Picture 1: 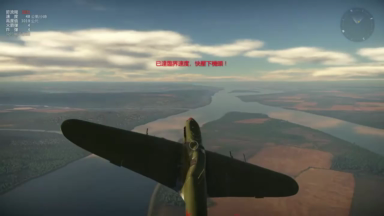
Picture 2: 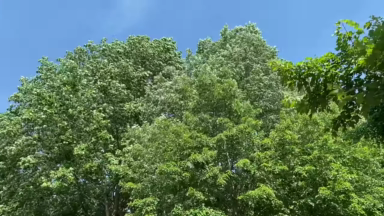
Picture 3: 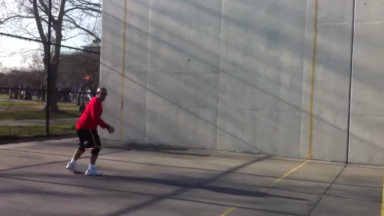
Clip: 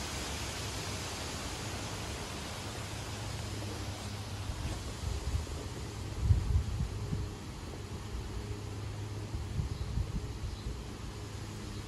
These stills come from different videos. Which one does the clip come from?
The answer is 2